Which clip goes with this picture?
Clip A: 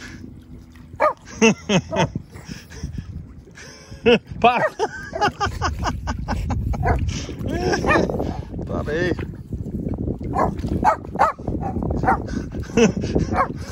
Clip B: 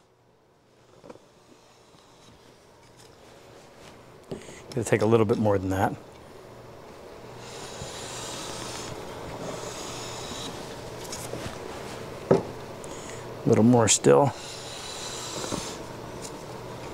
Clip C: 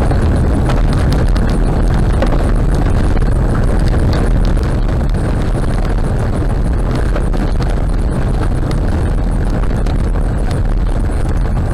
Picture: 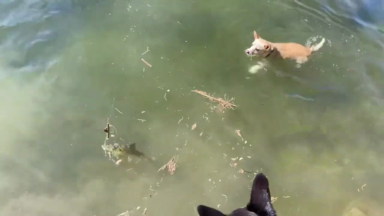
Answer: A